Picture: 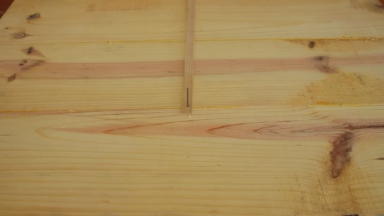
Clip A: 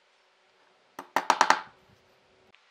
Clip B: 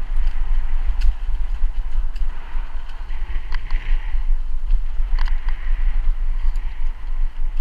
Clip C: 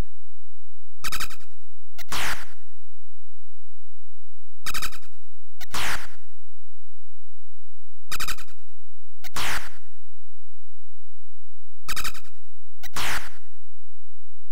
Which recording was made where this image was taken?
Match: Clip A